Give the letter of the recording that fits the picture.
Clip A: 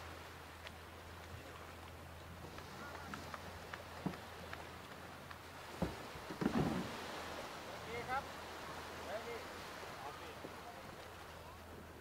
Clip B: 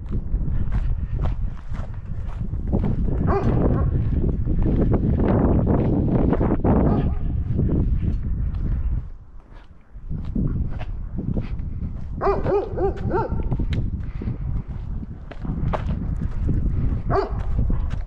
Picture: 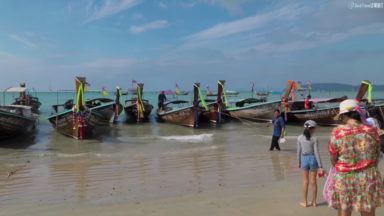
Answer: A